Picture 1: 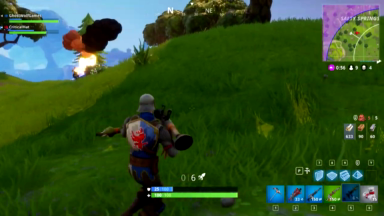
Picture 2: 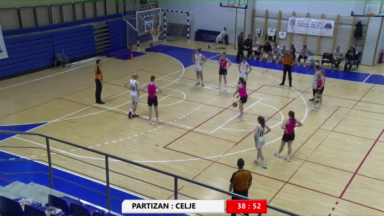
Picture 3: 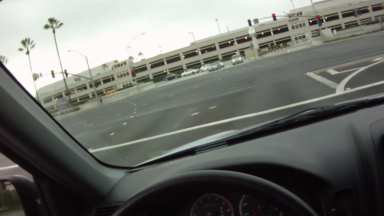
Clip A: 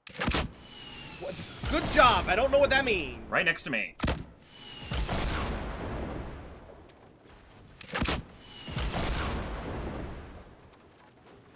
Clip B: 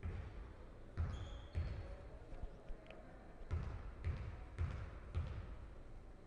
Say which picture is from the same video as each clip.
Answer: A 1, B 2